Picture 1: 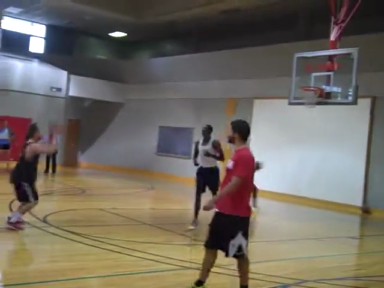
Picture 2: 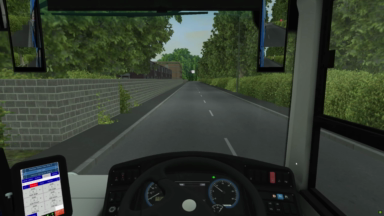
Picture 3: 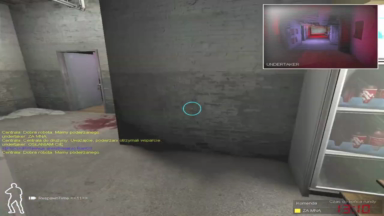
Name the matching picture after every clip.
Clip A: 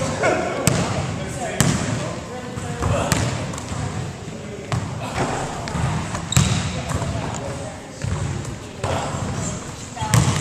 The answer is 1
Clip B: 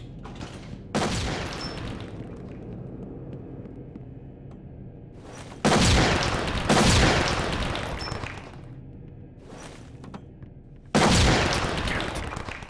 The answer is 3